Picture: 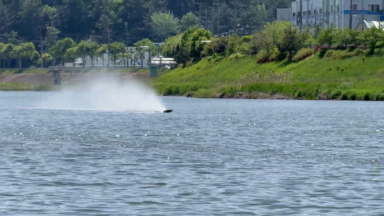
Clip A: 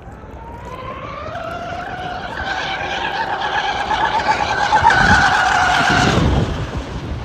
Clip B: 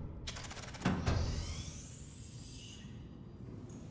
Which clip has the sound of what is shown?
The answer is A